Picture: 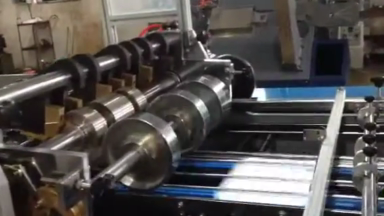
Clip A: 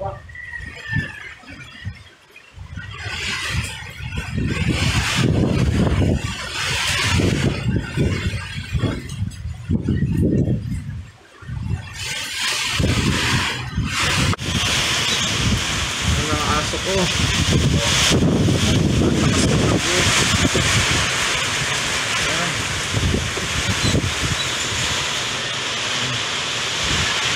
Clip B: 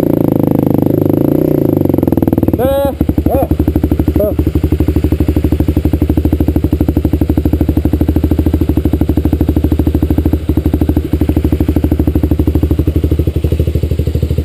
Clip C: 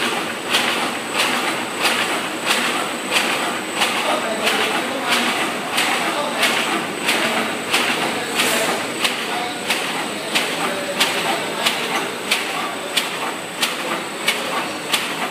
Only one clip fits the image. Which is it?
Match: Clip C